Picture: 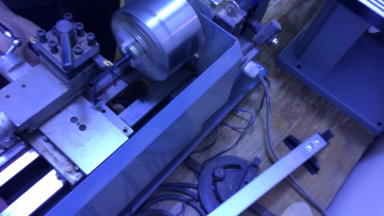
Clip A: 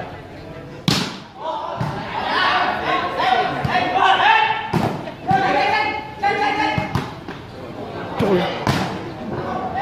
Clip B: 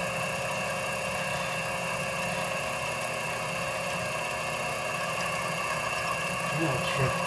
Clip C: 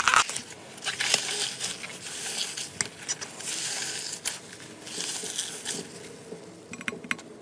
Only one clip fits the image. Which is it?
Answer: B